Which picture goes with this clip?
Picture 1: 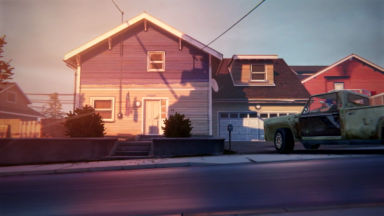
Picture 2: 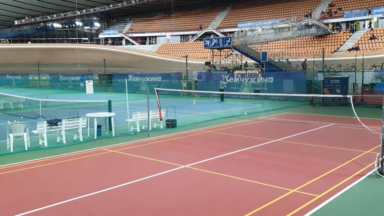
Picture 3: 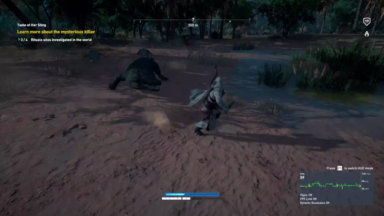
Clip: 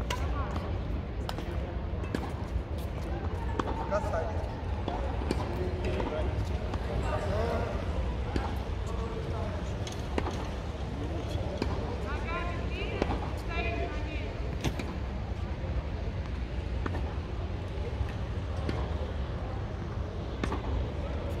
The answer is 2